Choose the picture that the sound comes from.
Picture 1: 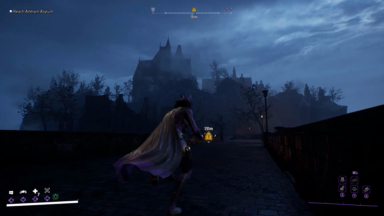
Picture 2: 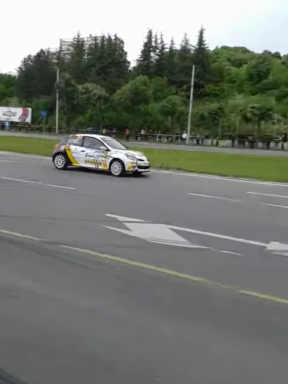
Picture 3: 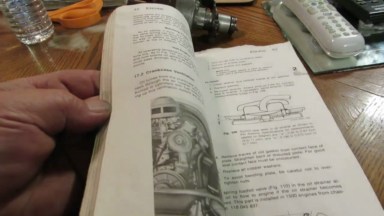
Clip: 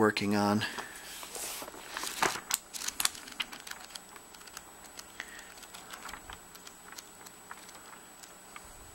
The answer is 3